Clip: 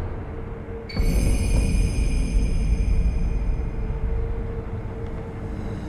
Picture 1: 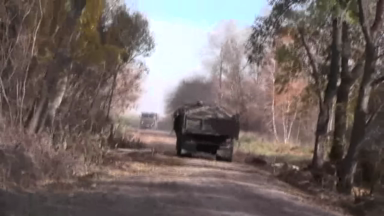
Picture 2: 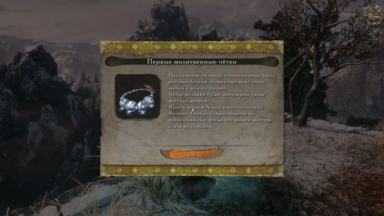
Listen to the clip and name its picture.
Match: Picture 2